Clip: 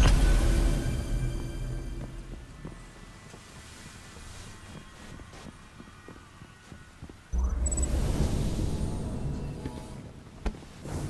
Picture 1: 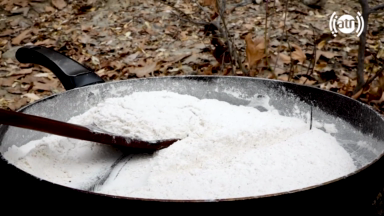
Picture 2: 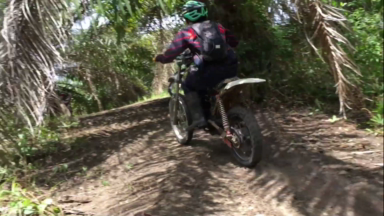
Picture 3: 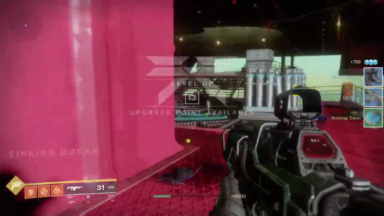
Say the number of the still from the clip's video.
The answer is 3